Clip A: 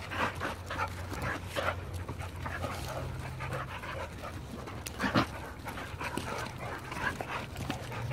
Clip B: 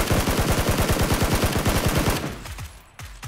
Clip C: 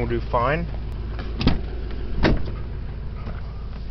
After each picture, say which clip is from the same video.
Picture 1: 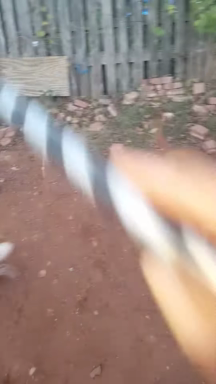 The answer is A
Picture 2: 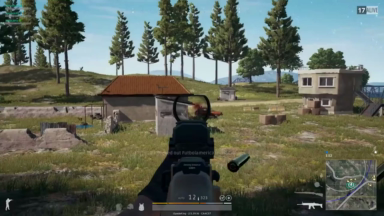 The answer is B